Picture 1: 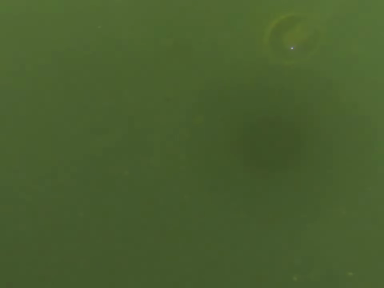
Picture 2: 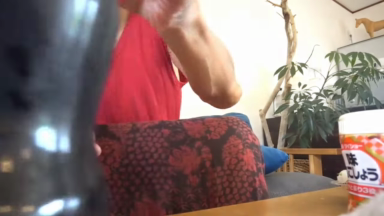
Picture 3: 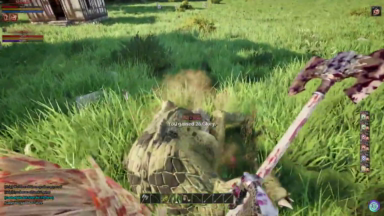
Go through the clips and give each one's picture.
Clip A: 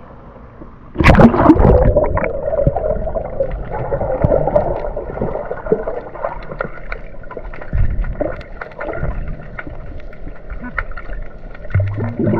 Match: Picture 1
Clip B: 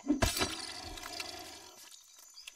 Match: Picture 3